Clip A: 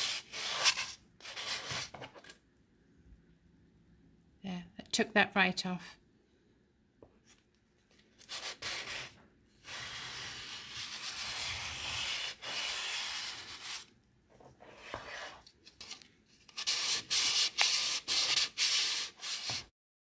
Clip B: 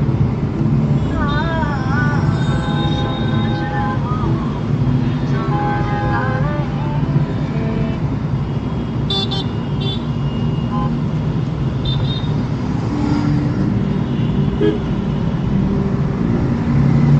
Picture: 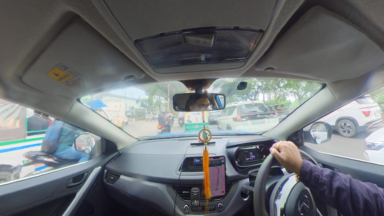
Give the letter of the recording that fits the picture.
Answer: B